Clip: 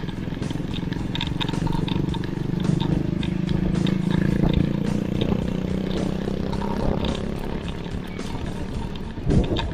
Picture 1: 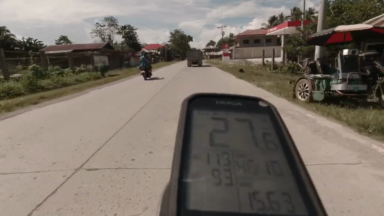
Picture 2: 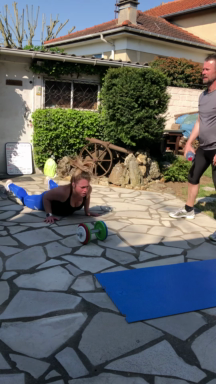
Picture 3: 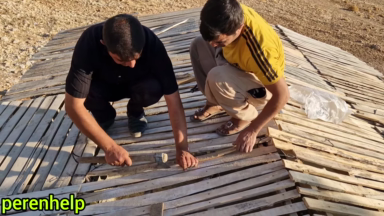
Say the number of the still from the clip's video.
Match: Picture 1